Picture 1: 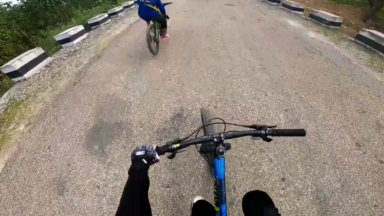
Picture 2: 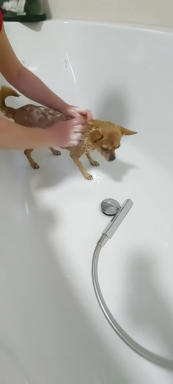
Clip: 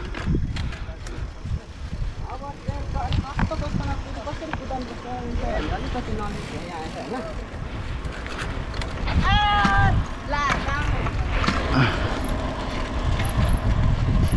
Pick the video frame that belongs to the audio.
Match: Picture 1